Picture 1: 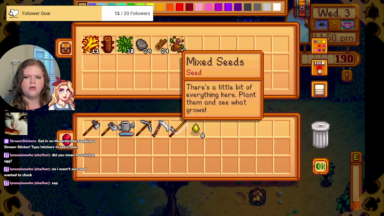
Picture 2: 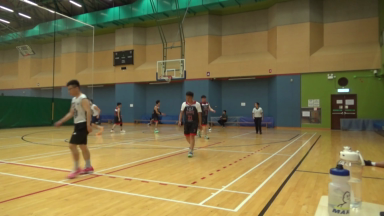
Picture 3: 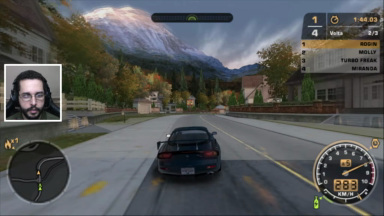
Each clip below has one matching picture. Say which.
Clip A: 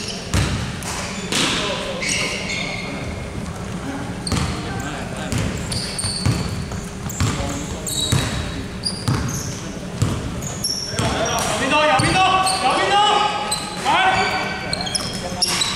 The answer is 2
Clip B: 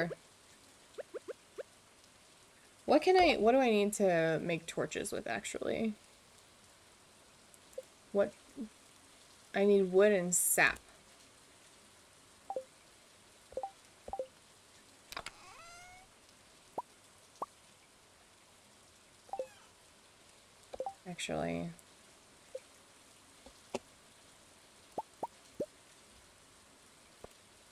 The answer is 1